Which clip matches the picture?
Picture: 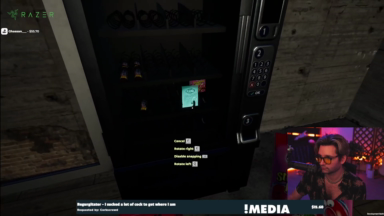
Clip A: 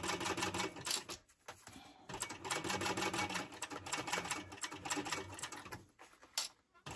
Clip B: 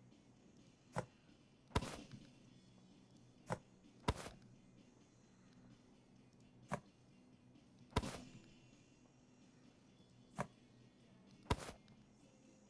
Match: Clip B